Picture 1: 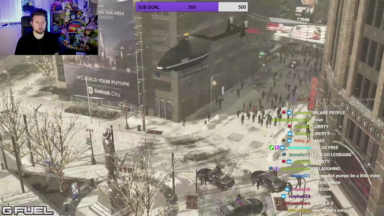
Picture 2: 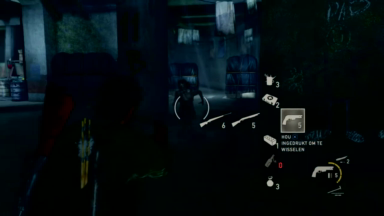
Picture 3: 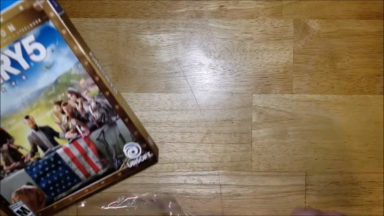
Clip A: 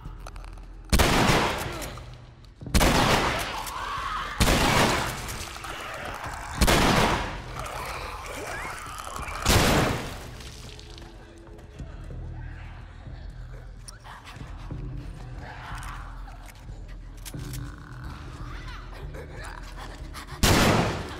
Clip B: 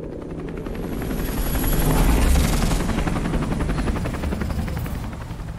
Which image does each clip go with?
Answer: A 2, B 1